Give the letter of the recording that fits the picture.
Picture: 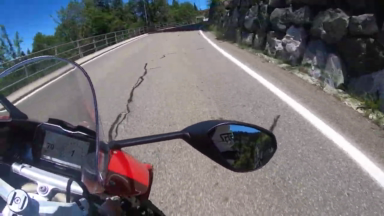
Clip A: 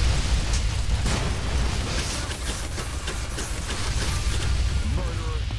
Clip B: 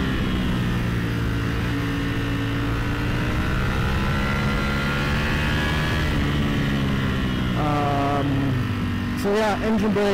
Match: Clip B